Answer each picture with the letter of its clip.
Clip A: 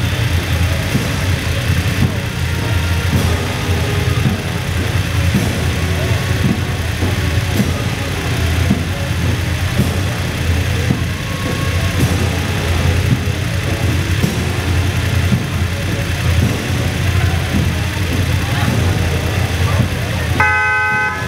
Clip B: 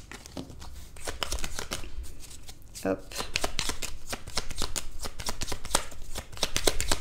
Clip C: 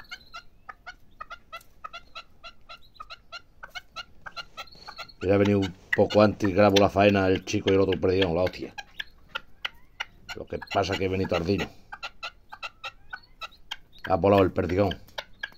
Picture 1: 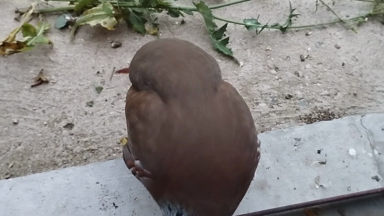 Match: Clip C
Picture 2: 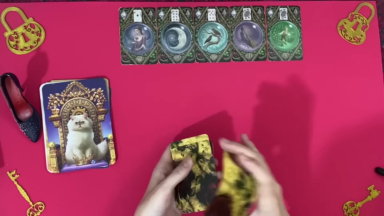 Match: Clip B